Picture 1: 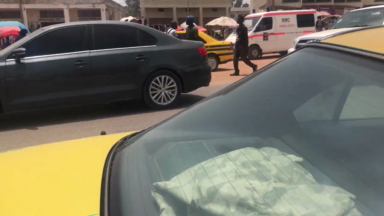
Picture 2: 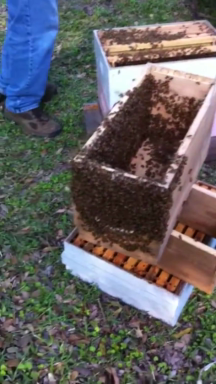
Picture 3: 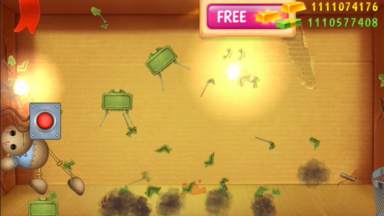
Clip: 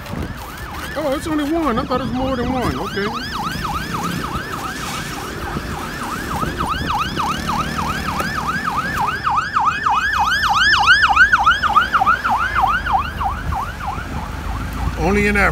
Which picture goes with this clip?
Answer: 1